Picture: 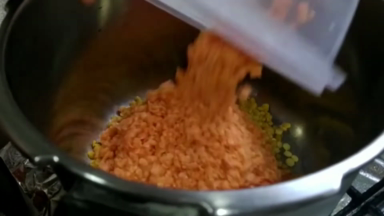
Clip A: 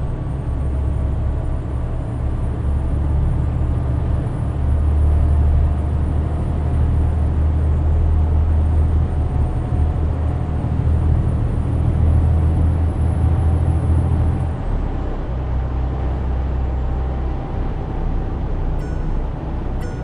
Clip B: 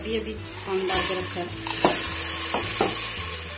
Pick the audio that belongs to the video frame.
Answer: B